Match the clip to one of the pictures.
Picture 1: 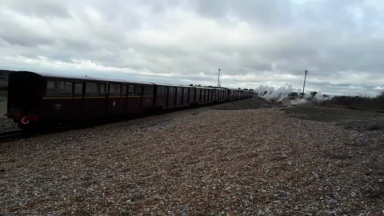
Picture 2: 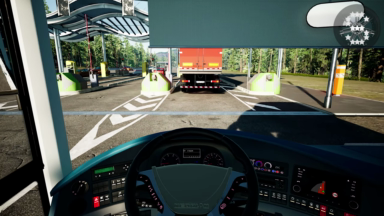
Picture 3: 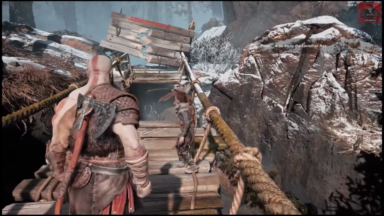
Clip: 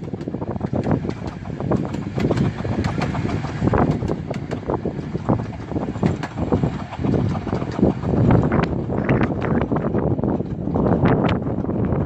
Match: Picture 1